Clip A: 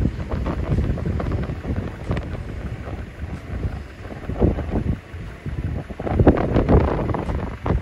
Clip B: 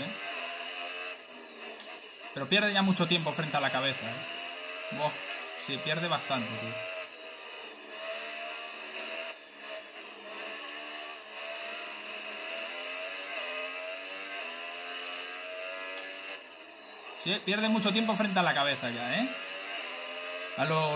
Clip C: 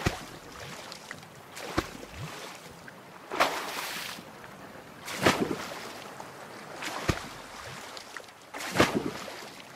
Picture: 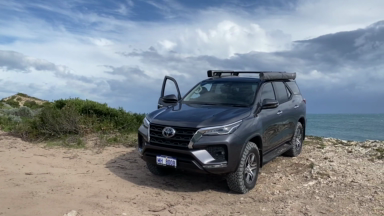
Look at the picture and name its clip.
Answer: A